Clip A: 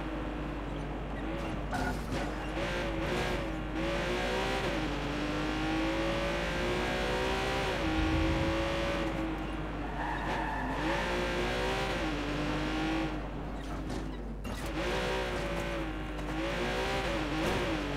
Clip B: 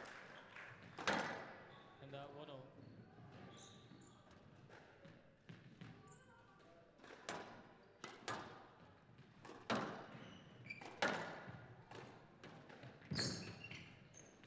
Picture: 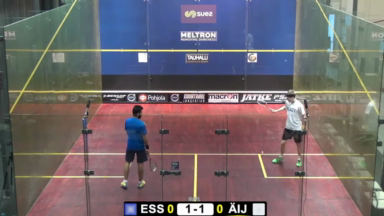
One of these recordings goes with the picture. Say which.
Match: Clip B